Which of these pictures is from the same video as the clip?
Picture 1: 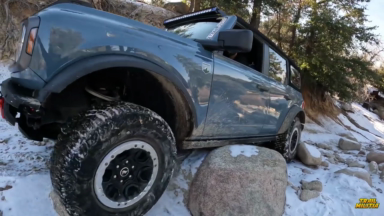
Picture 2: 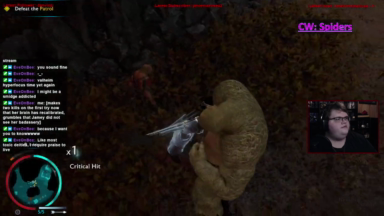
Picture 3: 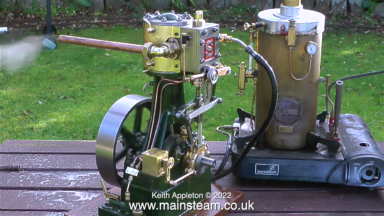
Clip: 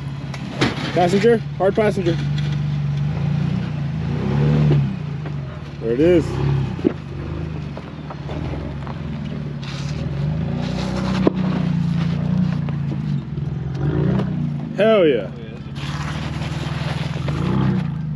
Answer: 1